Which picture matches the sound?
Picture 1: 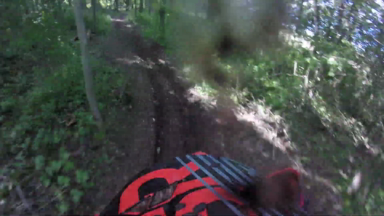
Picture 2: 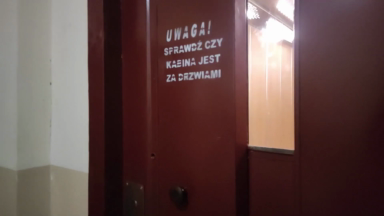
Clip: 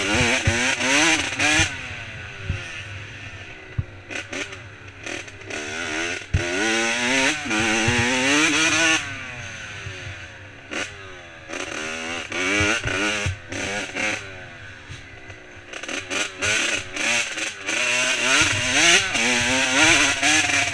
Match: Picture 1